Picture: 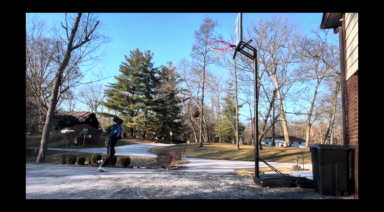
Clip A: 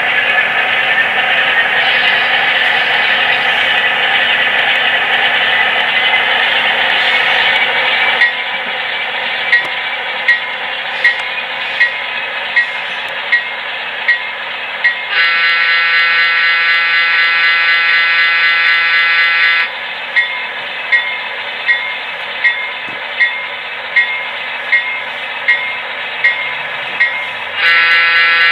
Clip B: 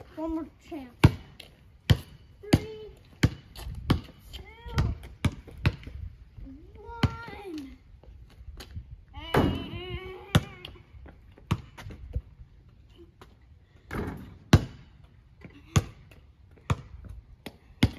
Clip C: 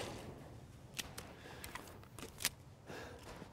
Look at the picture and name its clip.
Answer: B